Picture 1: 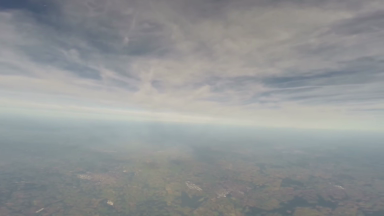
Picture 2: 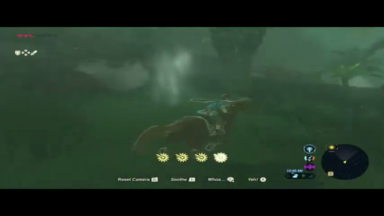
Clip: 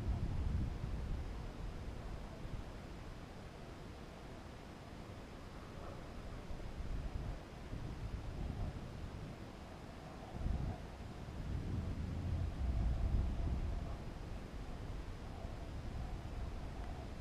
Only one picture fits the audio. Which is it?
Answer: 1